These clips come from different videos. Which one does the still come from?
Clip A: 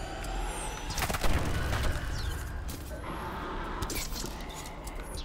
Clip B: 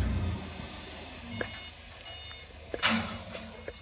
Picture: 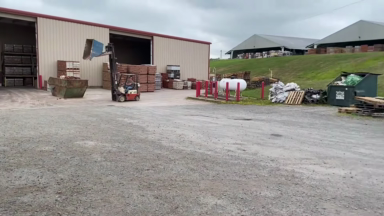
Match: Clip B